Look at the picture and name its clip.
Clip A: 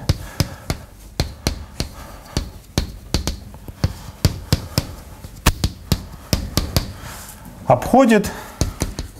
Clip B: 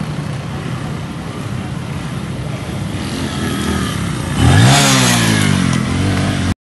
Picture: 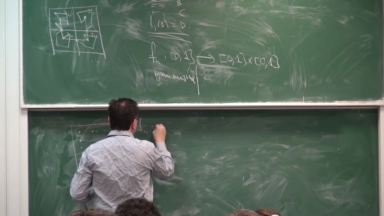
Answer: A